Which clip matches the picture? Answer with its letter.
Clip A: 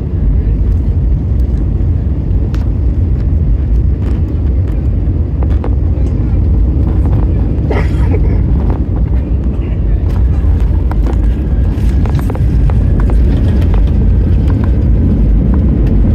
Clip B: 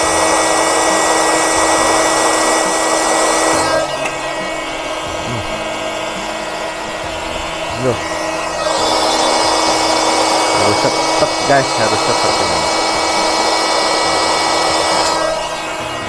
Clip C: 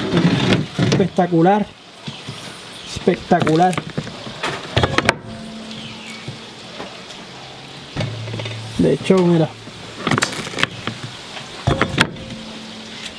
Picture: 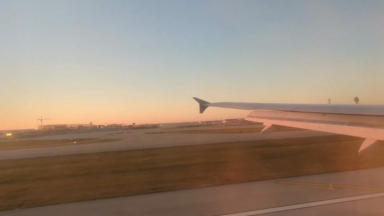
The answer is A